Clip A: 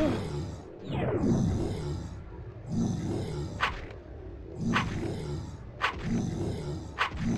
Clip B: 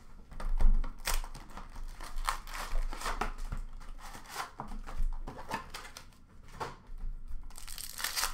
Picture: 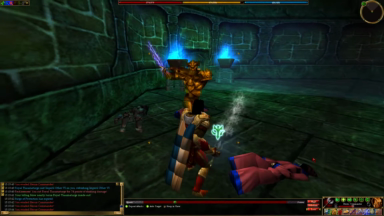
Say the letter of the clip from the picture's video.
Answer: A